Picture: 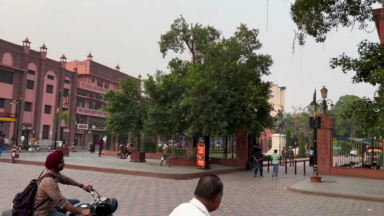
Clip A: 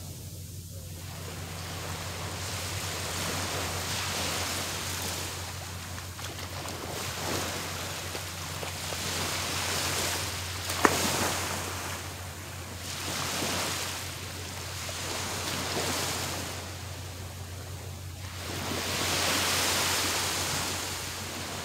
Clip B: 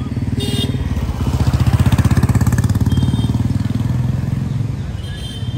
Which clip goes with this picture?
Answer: B